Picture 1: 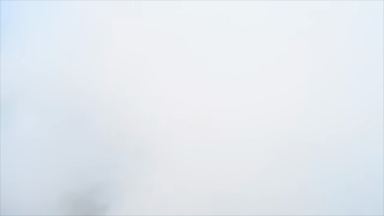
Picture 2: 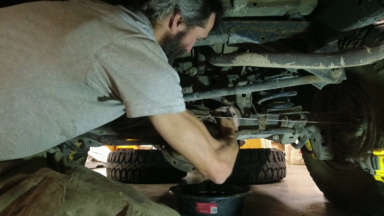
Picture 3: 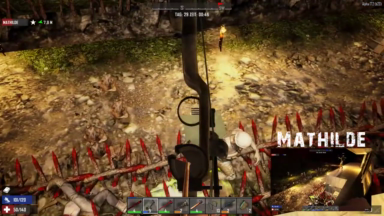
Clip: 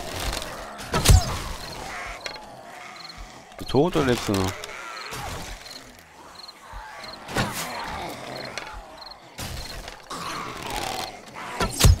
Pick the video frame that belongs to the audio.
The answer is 3